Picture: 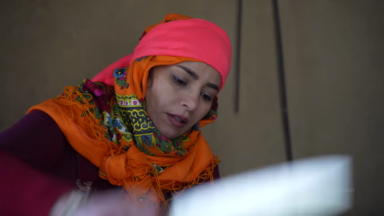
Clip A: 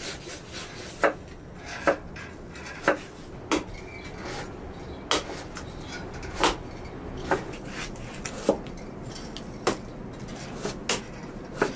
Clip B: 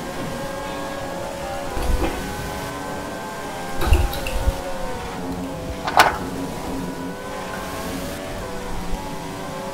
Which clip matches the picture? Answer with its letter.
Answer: A